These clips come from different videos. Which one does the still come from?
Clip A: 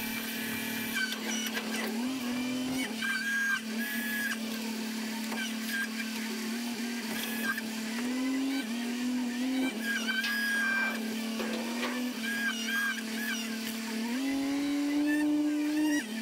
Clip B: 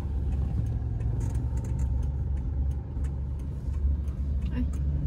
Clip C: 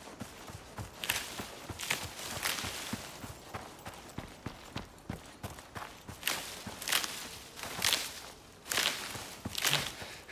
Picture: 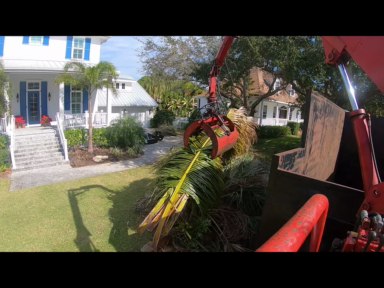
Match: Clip A